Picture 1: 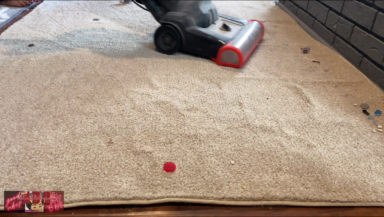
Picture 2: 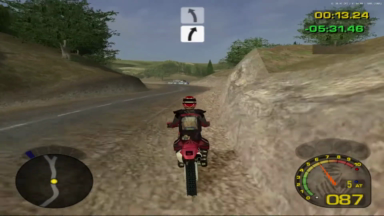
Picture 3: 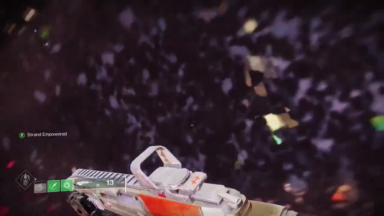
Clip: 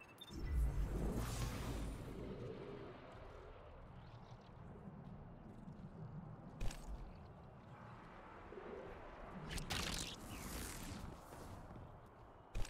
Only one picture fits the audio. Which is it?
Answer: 3